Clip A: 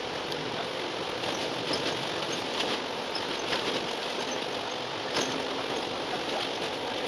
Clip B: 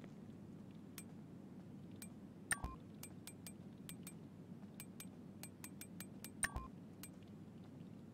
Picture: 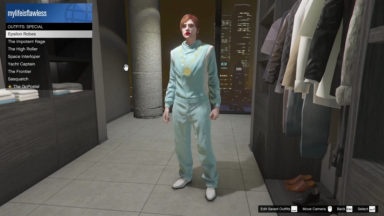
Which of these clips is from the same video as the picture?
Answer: B